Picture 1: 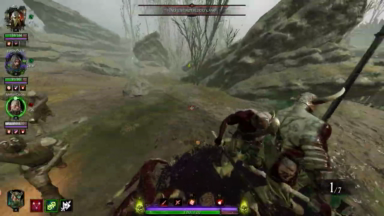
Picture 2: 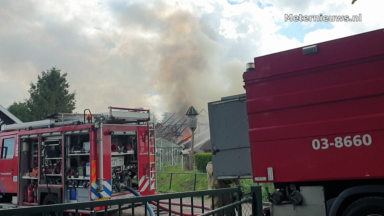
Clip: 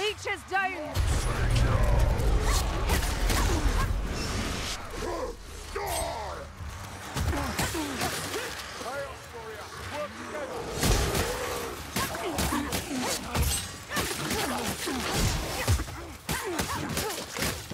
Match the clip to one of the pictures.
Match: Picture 1